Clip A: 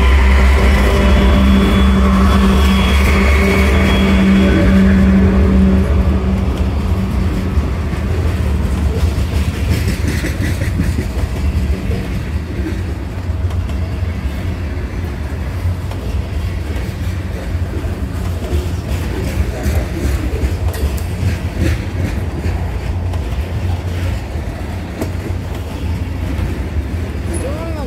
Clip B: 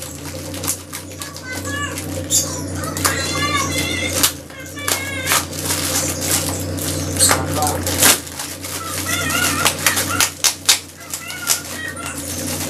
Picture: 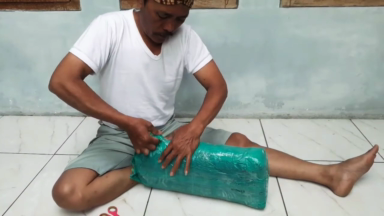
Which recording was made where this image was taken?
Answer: B